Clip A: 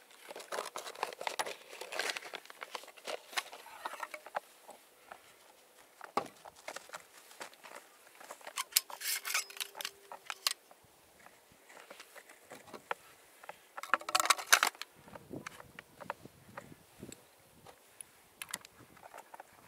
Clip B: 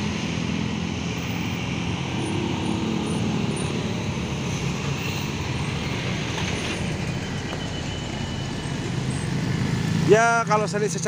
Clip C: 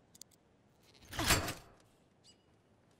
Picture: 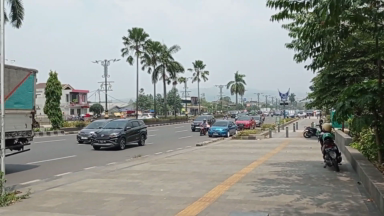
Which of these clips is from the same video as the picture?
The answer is B